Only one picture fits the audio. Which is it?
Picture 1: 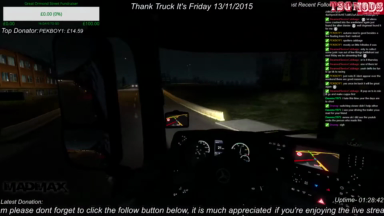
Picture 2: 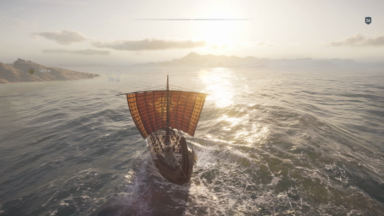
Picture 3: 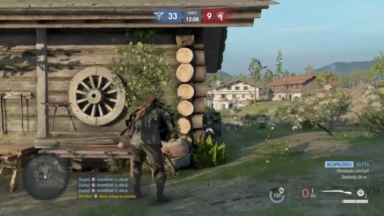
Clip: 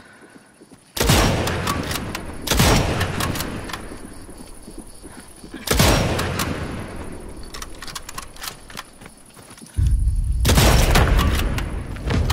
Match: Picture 3